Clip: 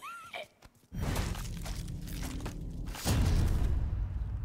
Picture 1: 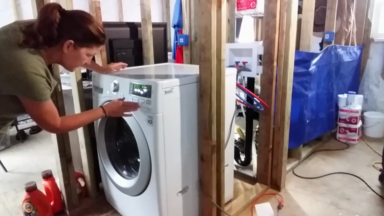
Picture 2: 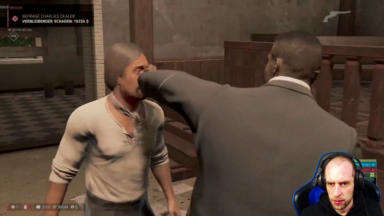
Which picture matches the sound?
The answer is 2